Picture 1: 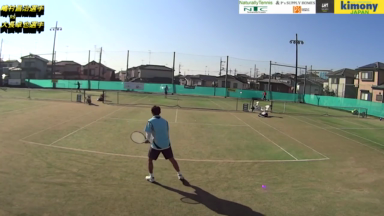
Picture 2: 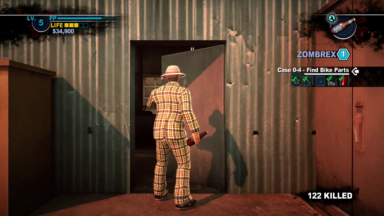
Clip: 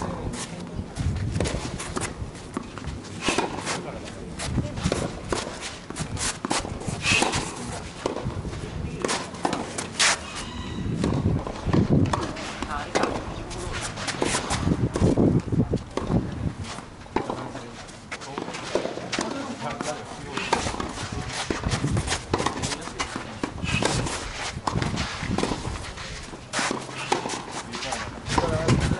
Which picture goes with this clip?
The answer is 1